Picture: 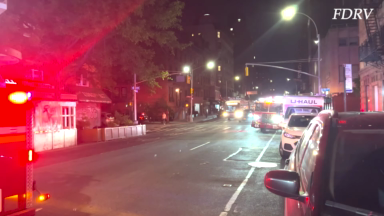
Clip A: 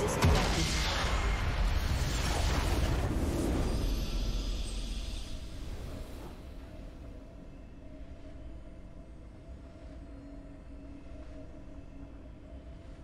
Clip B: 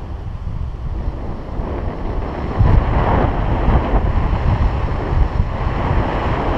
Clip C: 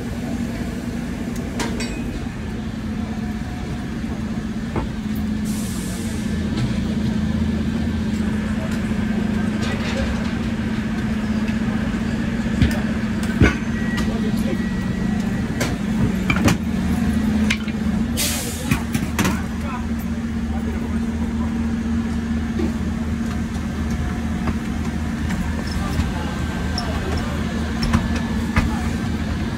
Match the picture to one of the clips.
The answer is C